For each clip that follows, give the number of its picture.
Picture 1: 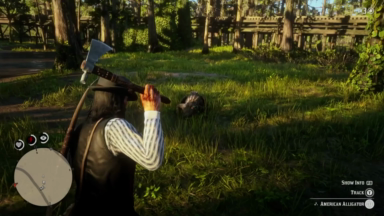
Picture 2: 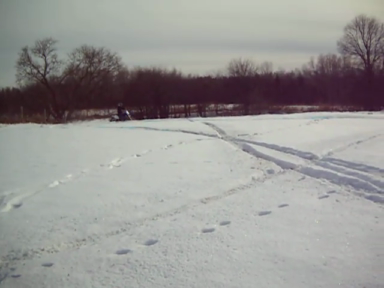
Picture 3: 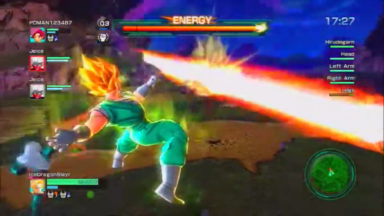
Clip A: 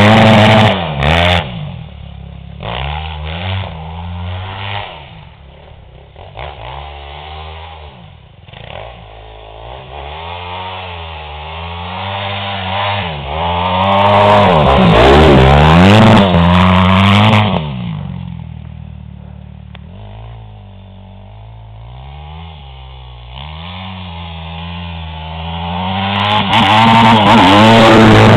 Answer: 2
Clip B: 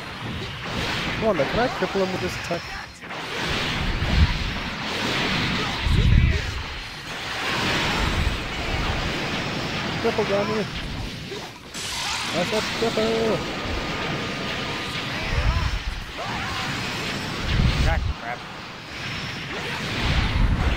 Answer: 3